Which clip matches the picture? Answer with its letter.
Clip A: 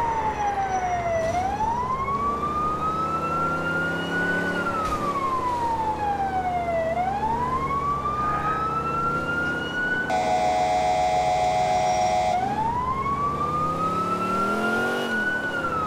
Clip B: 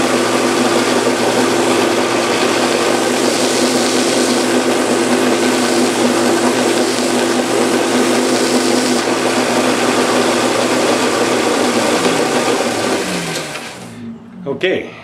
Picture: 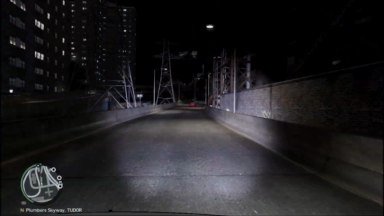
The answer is A